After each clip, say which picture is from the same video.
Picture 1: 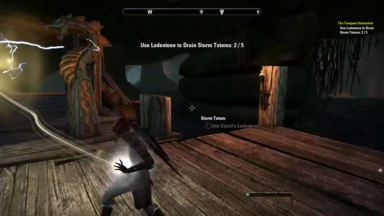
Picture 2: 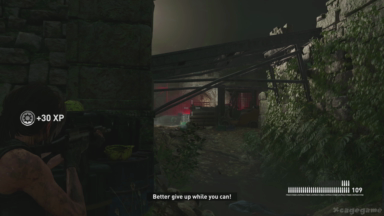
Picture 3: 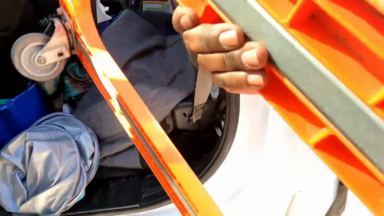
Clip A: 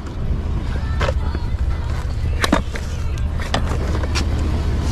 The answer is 3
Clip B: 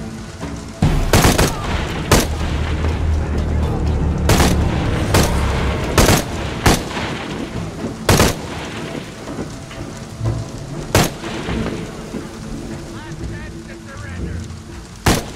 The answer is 2